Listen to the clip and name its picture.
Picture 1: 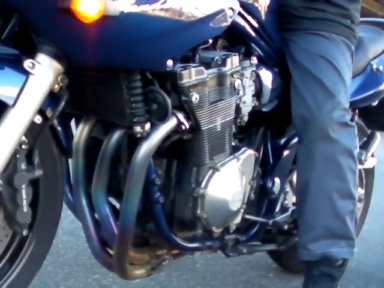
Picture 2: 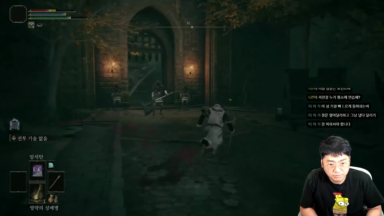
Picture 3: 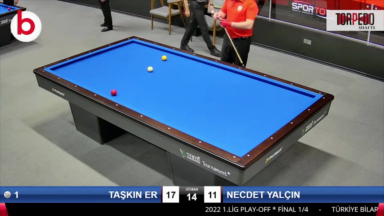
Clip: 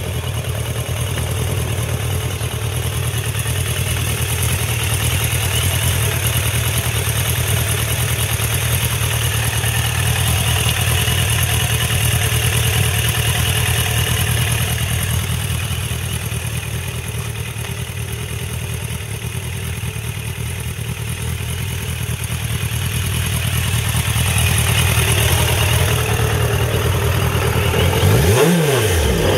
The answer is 1